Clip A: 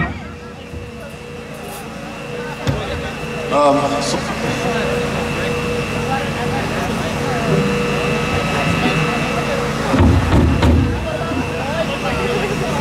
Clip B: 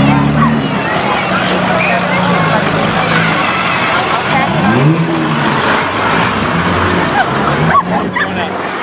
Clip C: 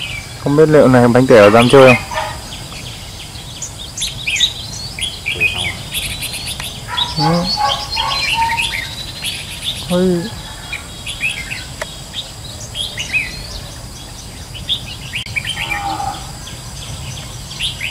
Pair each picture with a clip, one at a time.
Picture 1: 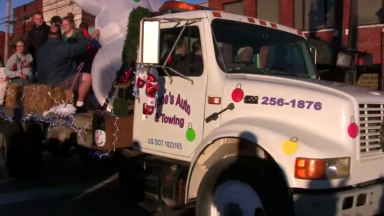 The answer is B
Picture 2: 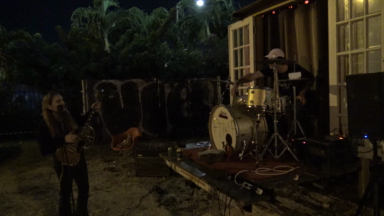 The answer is A